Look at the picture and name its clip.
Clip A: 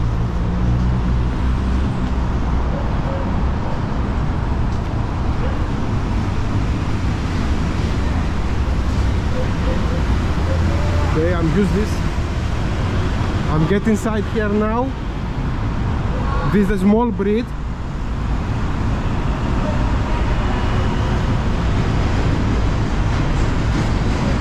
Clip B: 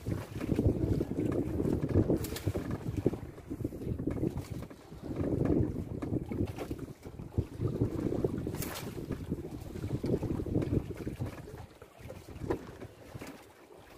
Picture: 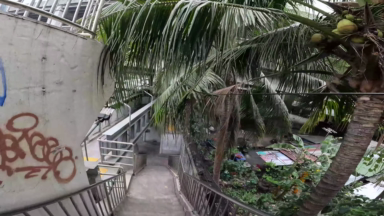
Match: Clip A